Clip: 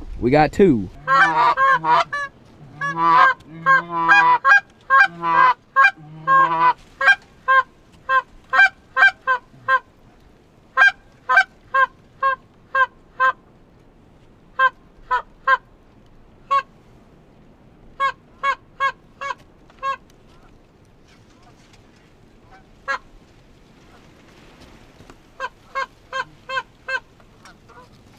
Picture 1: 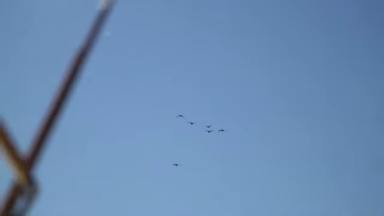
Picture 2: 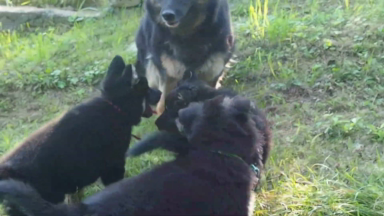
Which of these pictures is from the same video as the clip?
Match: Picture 1